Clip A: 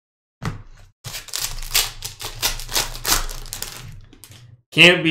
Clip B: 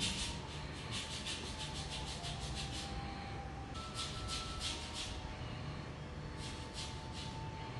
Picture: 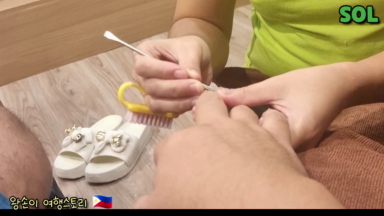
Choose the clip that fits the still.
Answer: B